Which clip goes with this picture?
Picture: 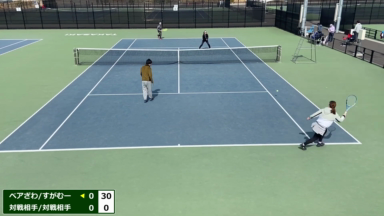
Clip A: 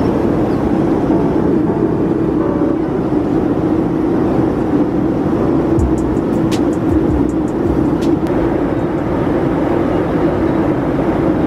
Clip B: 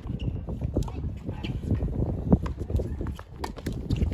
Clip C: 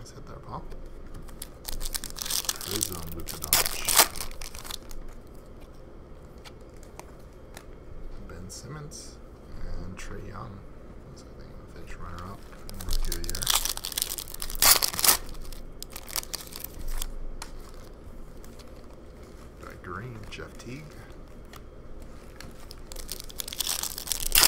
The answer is B